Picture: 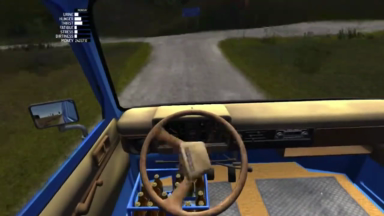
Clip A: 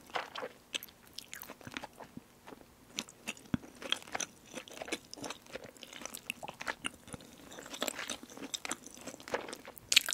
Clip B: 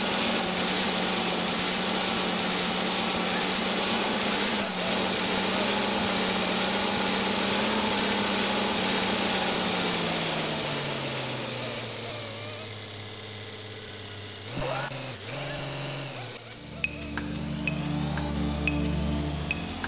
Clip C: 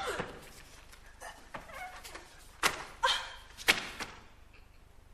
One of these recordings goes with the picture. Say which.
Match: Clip B